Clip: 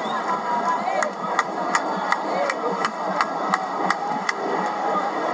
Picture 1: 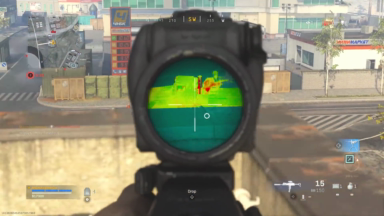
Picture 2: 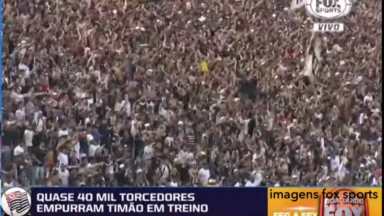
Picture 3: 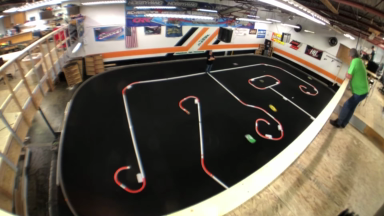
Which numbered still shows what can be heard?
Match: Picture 2